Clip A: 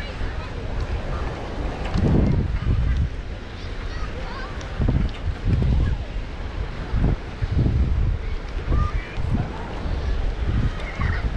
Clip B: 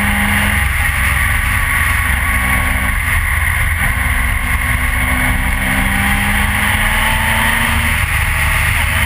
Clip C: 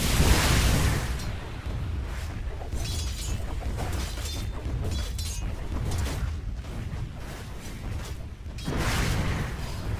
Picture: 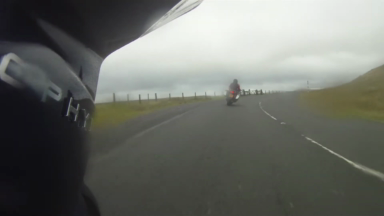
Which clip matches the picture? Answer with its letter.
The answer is B